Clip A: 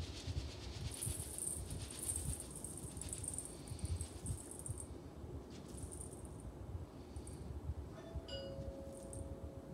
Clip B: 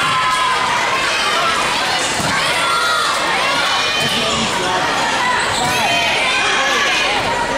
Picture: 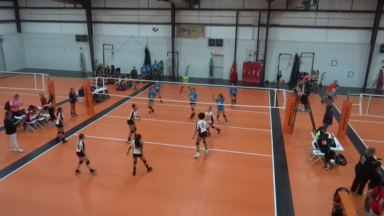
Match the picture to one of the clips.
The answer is B